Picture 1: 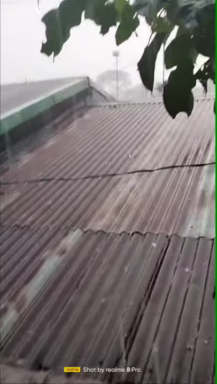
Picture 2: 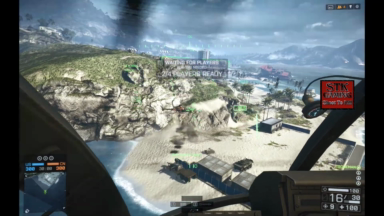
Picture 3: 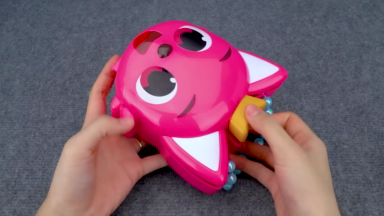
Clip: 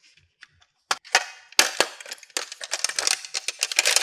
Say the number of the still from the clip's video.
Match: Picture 3